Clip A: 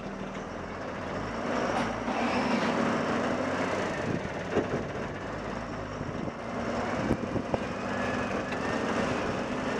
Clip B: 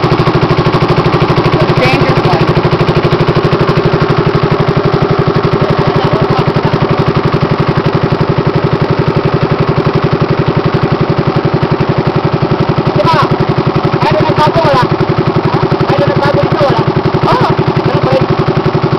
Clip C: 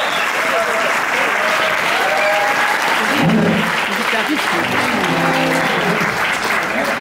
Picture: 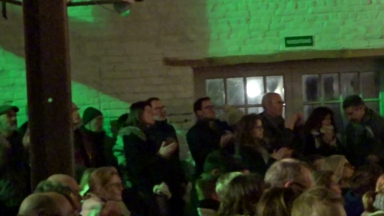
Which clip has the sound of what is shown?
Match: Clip C